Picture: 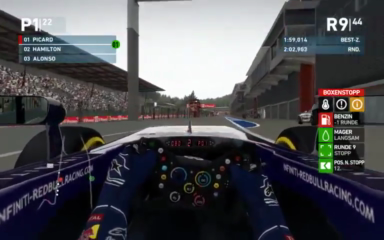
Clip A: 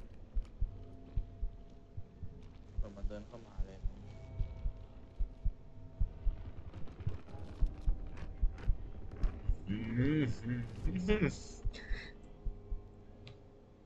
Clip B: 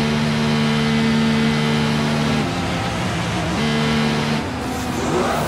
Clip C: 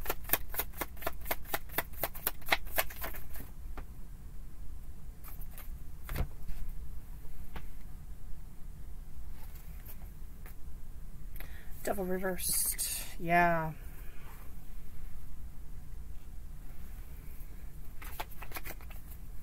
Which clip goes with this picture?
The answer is B